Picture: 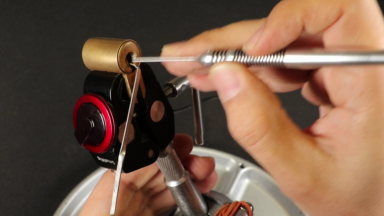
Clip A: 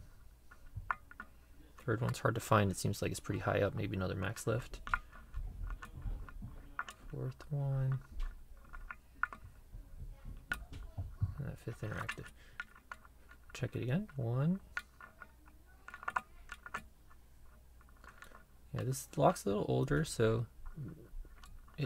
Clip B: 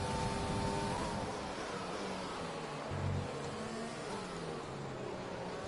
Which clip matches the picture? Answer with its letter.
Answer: A